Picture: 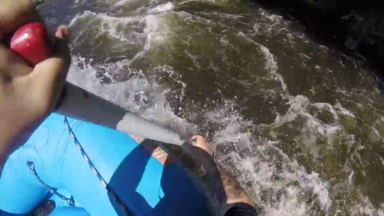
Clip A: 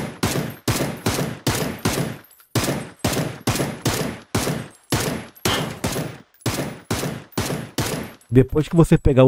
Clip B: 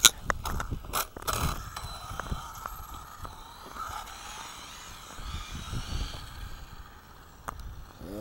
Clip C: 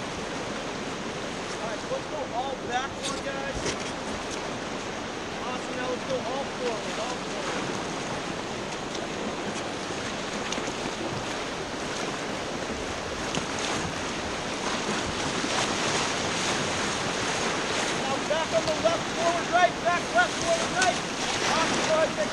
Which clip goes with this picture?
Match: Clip C